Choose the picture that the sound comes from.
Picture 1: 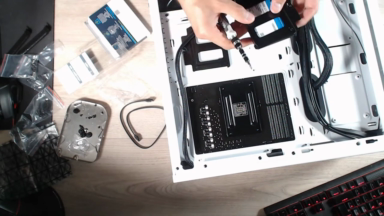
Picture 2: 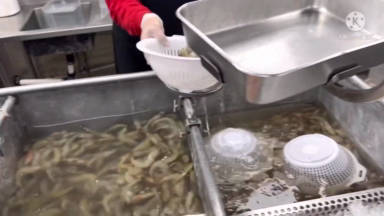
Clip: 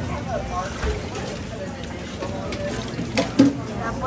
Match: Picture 2